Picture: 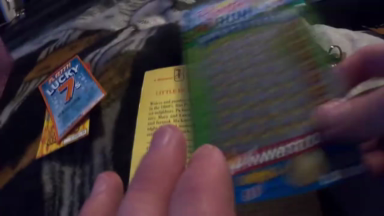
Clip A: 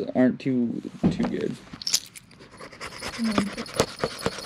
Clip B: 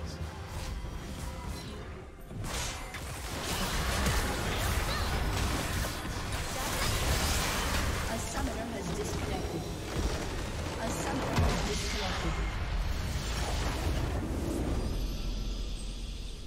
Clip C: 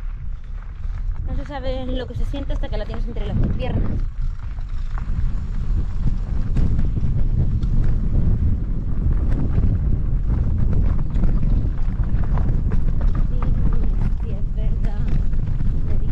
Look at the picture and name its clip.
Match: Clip A